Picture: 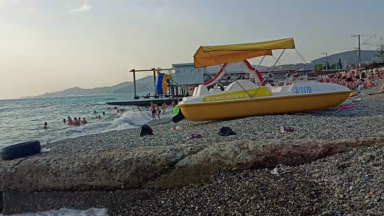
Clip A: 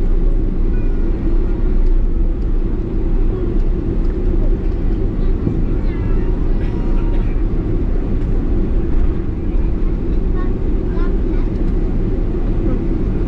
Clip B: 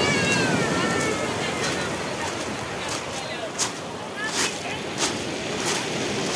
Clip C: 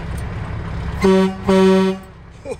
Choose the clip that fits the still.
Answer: B